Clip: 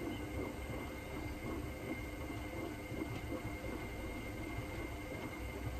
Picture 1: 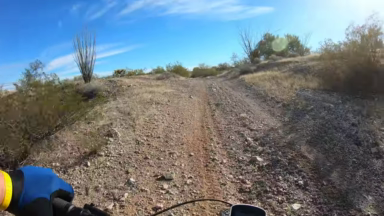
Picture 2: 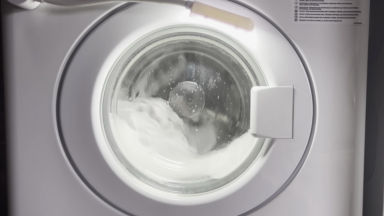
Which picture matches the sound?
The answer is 2